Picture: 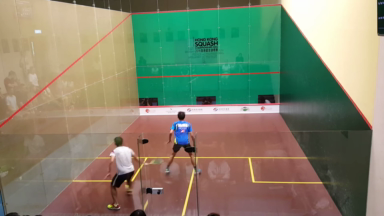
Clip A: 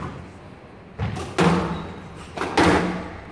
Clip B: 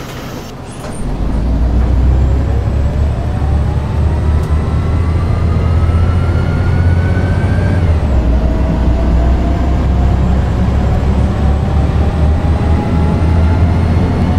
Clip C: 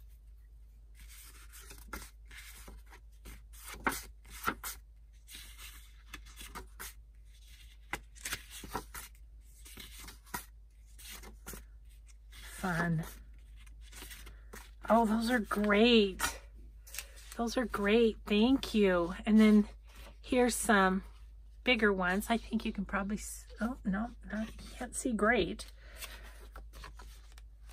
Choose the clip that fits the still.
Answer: A